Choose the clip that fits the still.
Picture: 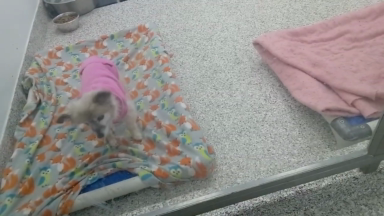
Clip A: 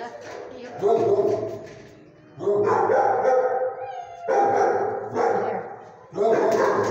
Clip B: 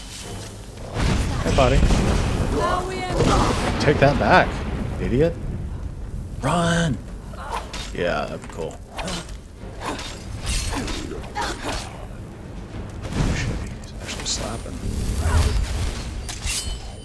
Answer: A